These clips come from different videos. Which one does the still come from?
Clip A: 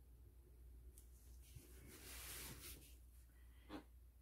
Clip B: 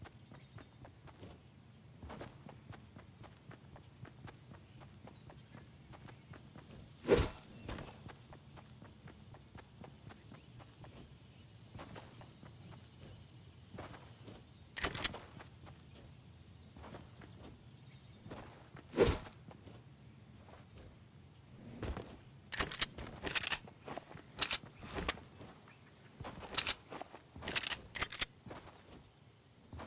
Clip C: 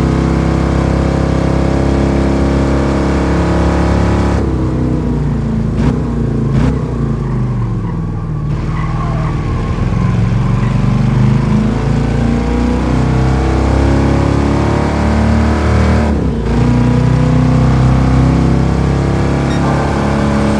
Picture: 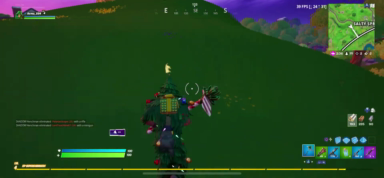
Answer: B